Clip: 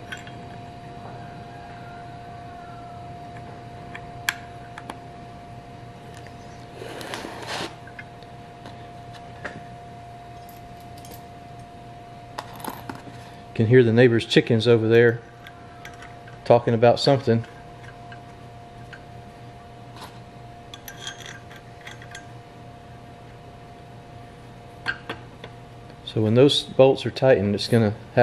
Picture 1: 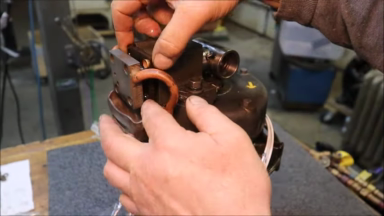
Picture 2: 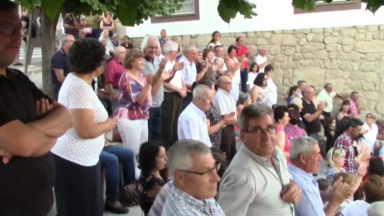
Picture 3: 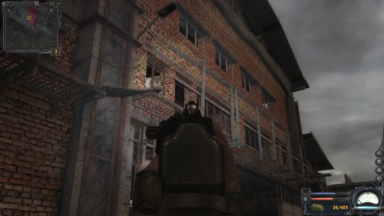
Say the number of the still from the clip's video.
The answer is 1